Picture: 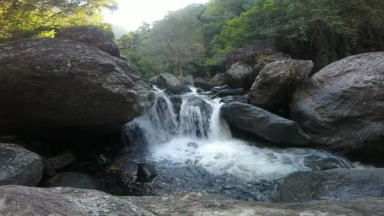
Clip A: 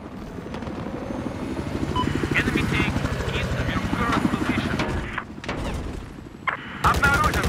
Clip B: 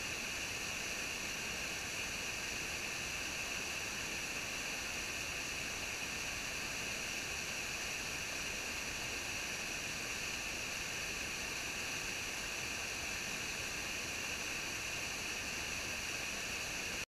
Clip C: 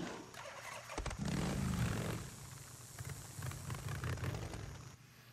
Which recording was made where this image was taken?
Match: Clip B